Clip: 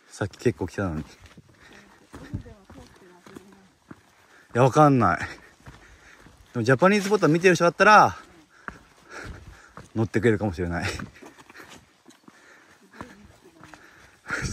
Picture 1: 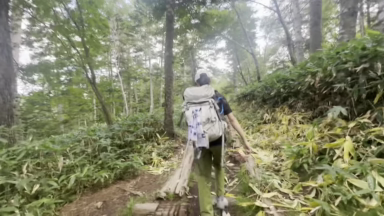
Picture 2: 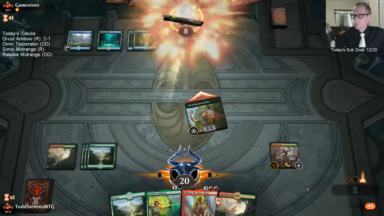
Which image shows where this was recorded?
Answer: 1